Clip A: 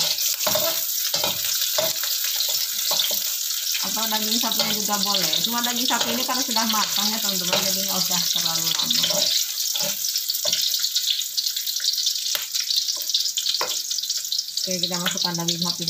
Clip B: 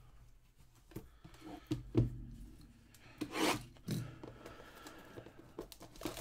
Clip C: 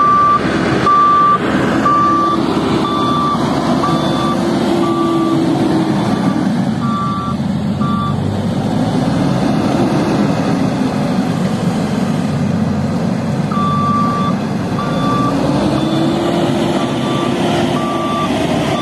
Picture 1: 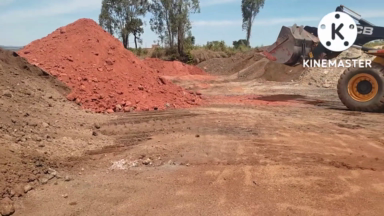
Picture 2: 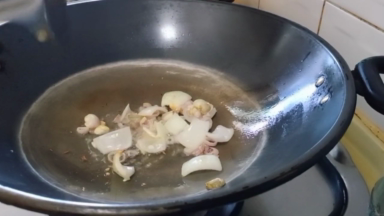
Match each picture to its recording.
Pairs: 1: C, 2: A